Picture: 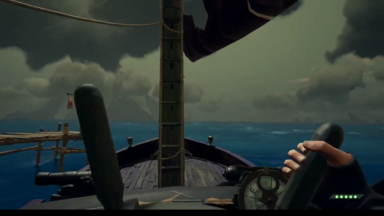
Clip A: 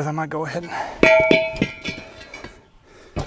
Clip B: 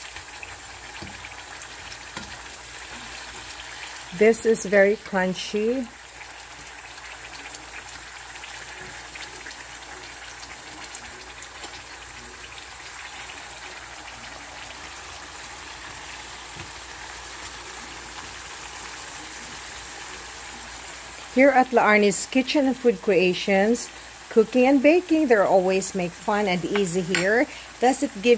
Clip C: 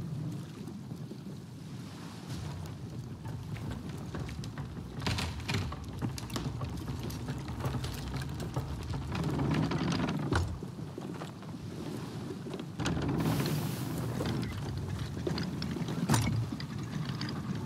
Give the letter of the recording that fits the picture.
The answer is C